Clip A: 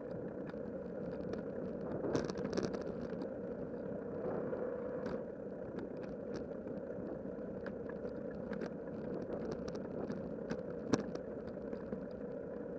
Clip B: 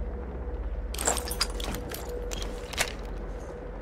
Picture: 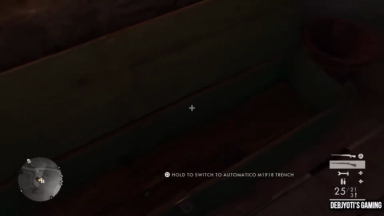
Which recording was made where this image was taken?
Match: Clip B